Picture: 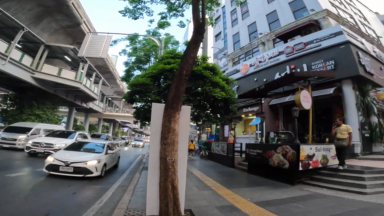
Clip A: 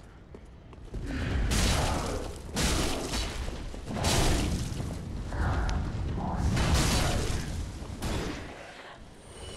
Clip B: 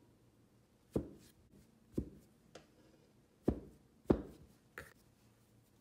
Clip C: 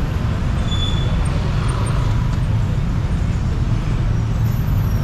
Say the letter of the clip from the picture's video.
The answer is C